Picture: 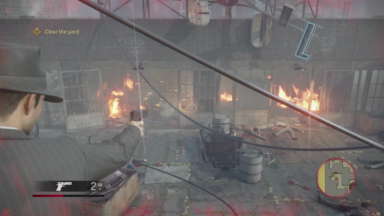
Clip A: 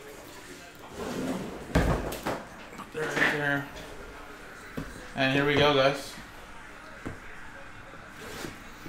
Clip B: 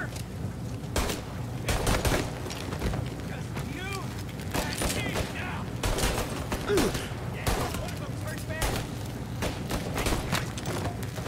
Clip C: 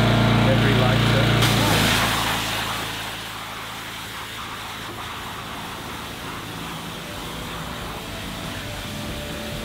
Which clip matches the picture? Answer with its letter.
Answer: B